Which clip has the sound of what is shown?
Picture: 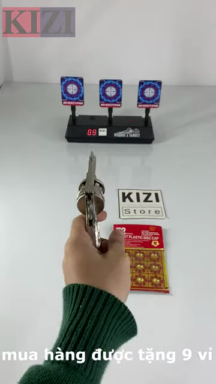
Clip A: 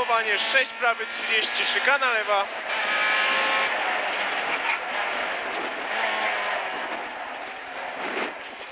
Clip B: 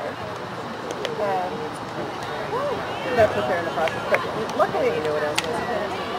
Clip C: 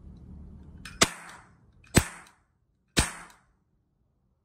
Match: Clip C